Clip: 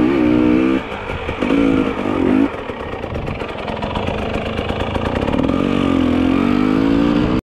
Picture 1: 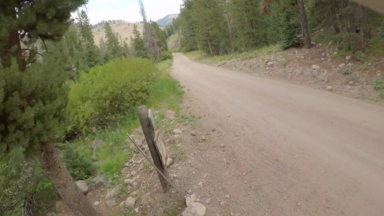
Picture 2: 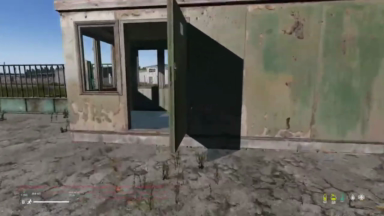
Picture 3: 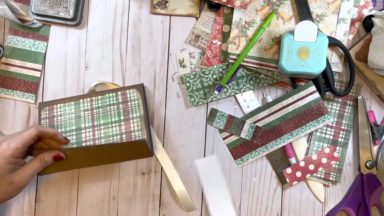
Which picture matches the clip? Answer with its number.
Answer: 1